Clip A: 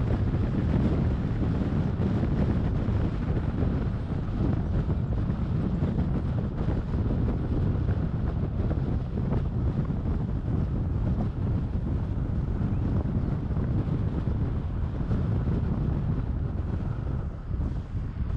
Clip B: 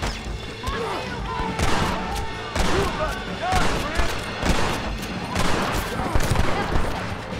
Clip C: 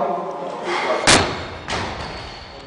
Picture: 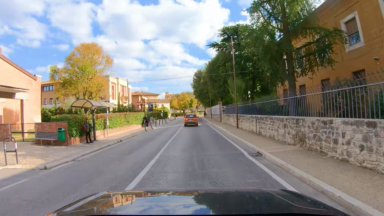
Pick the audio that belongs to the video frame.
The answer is A